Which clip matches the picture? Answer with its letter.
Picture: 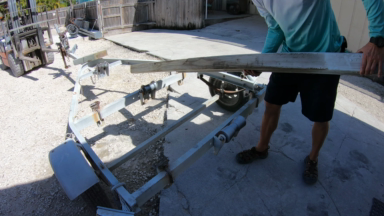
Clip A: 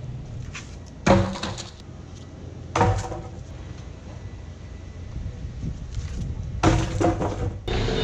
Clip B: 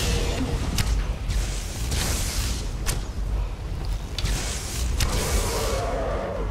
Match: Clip A